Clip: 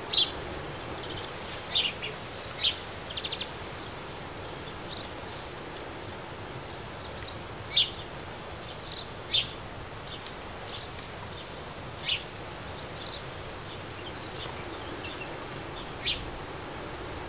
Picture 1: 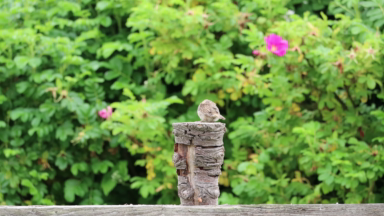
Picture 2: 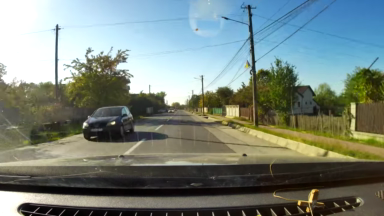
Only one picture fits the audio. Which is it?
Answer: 1